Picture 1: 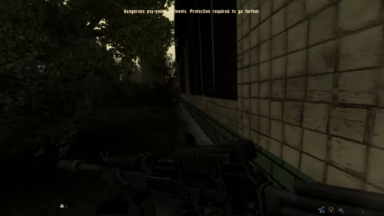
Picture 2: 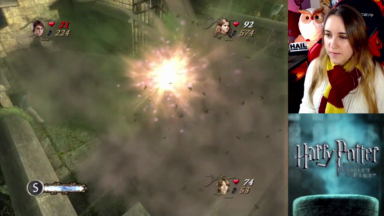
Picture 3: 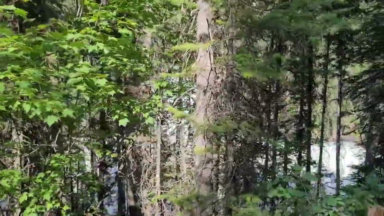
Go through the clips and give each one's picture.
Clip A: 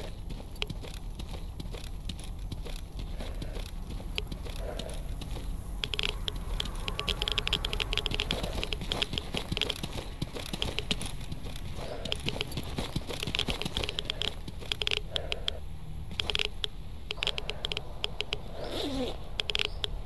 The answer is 1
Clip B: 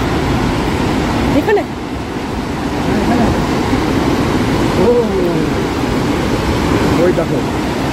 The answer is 3